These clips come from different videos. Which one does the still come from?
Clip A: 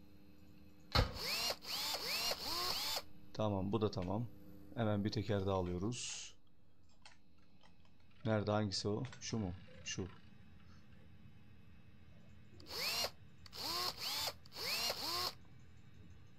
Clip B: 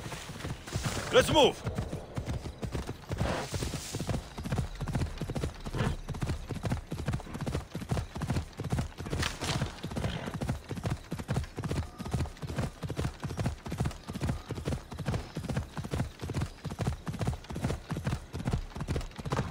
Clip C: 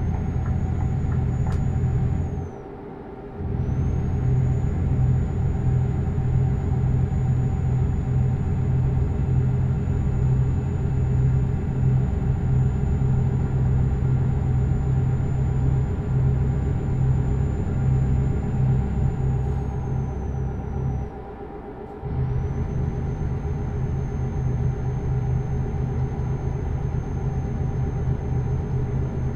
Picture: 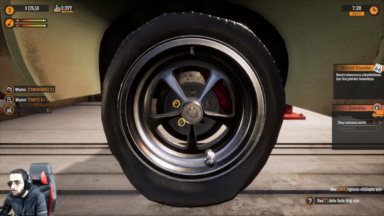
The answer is A